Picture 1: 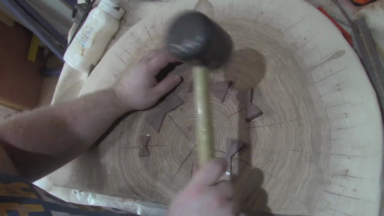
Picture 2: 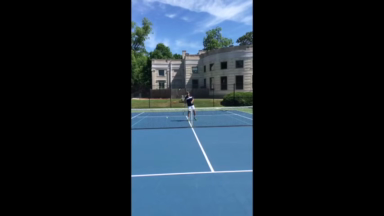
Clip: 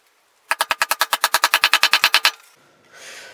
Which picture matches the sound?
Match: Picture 1